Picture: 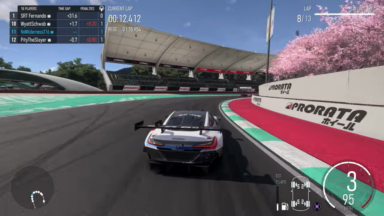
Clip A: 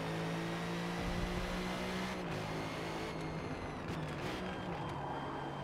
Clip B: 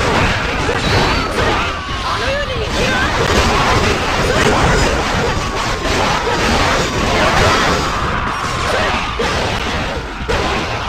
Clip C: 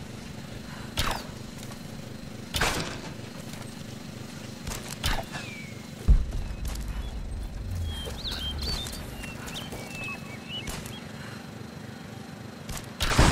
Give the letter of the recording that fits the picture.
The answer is A